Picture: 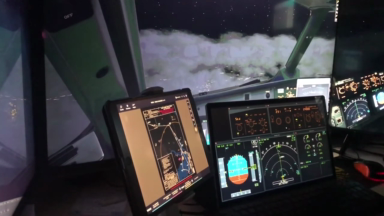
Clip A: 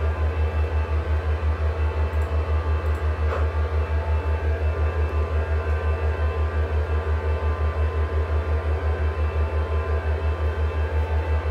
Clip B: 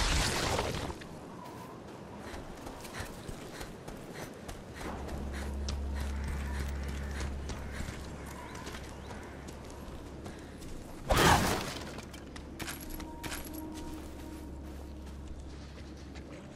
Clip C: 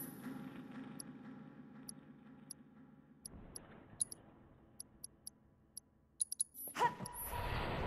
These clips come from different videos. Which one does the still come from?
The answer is A